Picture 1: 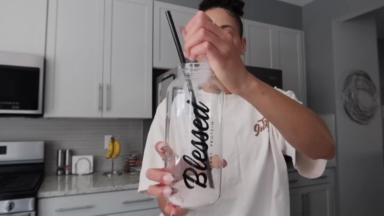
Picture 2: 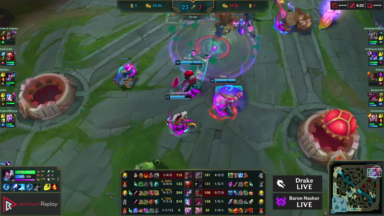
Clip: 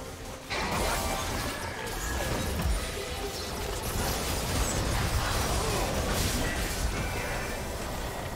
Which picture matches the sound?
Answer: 2